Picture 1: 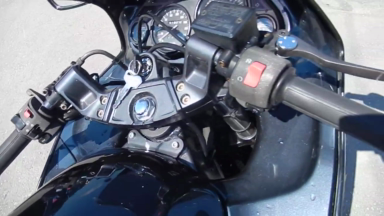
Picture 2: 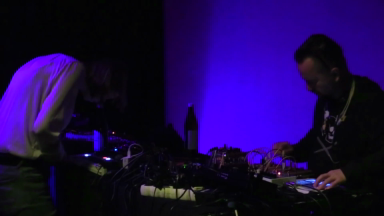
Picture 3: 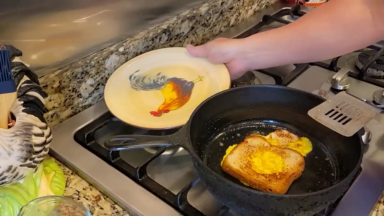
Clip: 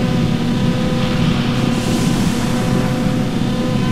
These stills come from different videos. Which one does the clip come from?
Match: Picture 2